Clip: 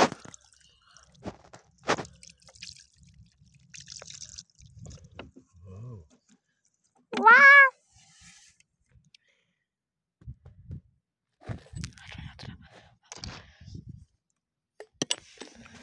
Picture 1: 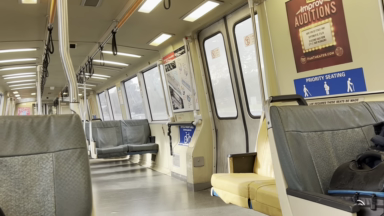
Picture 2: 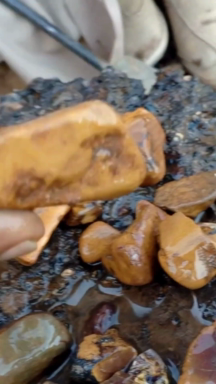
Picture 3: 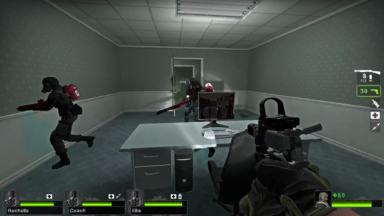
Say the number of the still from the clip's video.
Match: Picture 2